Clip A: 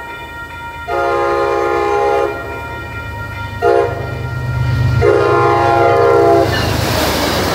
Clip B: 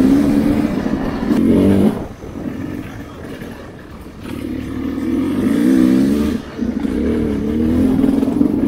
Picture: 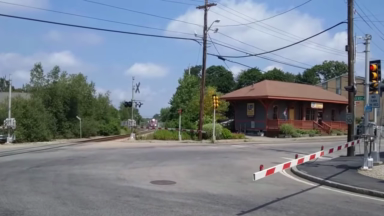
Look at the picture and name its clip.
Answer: A